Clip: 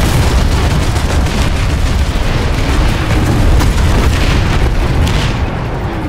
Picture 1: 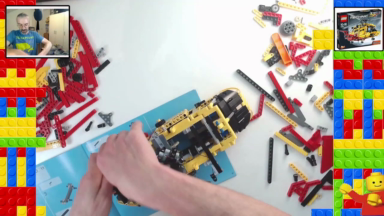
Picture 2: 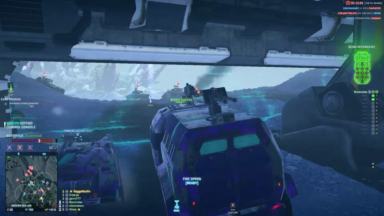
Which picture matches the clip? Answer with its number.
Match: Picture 2